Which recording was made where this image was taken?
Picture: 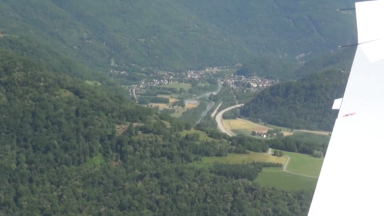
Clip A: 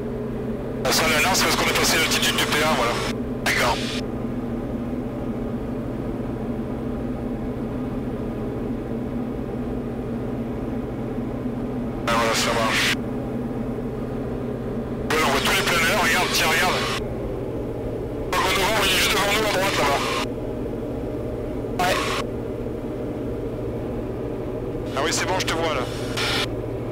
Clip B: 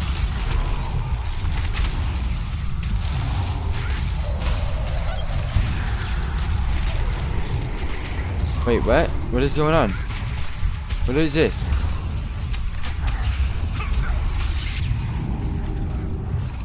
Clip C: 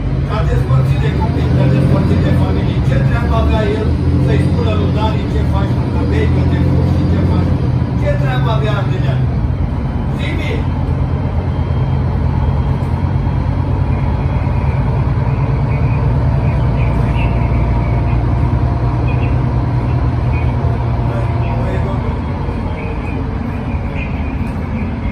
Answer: A